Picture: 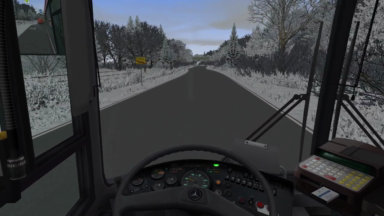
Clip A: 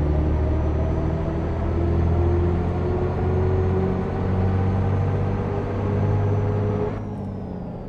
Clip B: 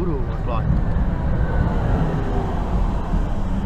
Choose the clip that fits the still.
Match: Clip A